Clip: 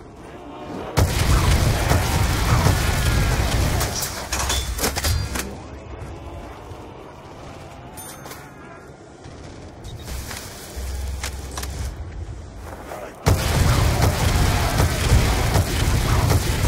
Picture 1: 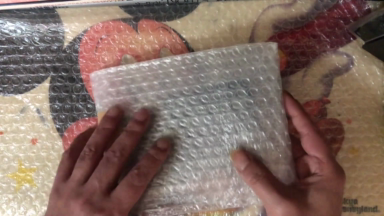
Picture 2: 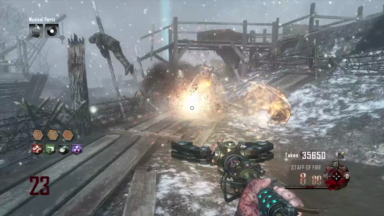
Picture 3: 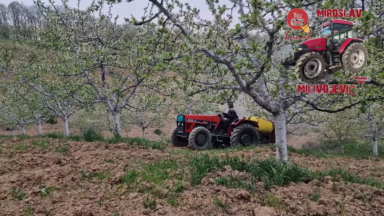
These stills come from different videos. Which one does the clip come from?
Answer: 2